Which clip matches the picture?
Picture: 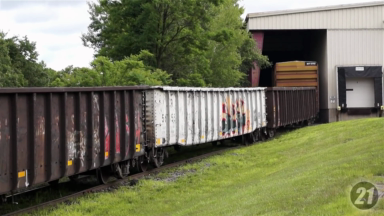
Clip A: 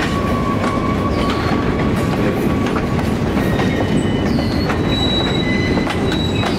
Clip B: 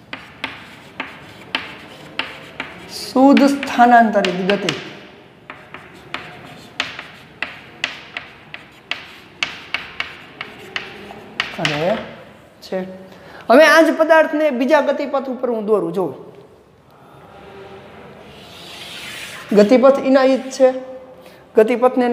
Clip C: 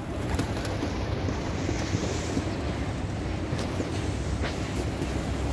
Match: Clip A